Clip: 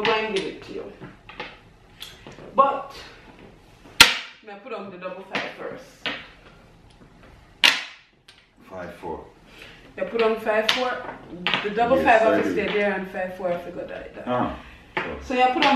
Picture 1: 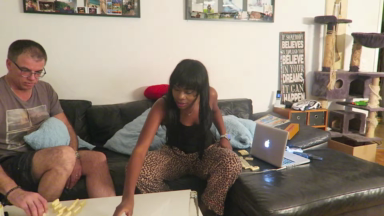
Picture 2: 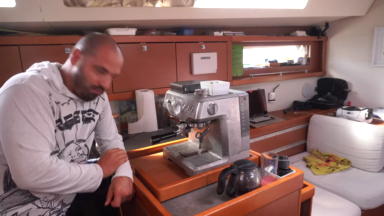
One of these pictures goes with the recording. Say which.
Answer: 1